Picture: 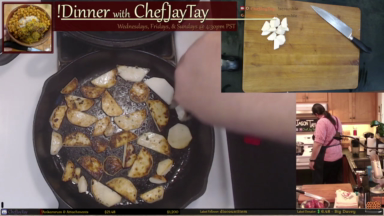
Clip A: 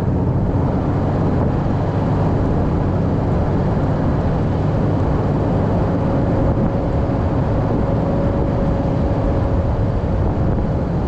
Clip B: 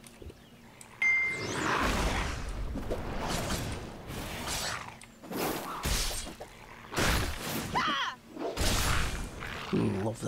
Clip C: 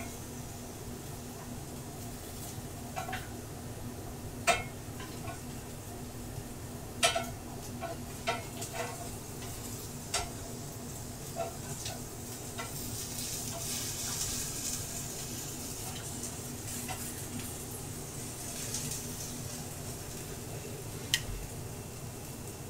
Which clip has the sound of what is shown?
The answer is C